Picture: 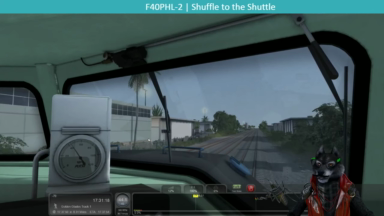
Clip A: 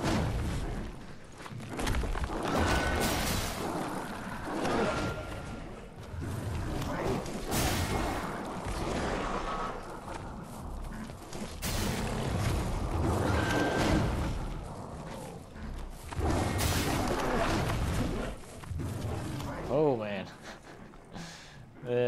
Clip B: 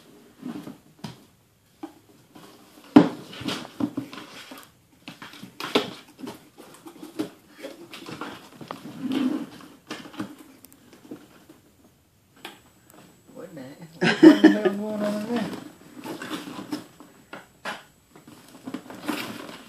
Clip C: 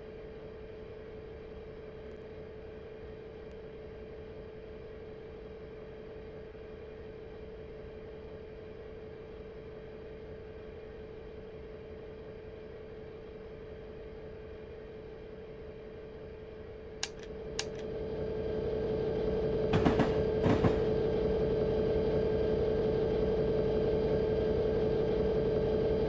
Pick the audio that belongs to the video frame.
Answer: C